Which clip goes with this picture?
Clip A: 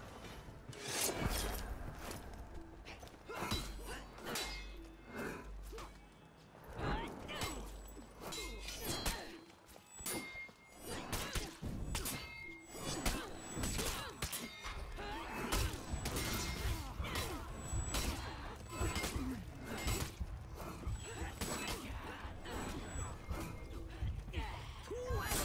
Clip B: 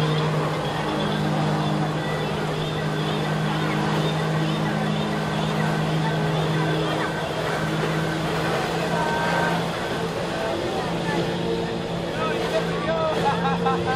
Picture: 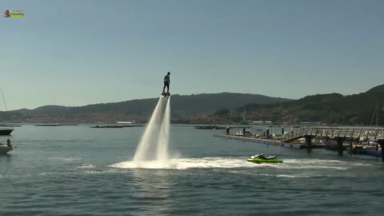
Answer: B